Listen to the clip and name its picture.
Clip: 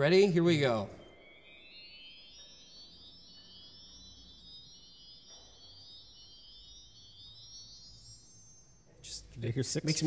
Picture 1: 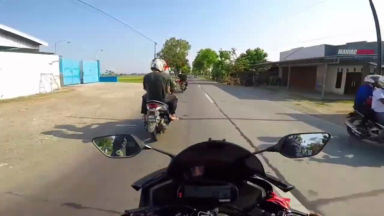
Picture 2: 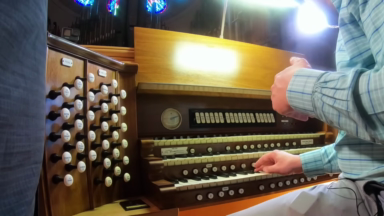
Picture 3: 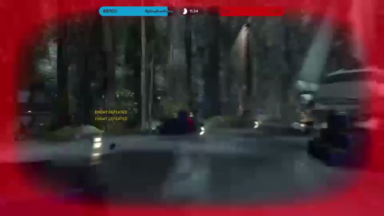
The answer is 2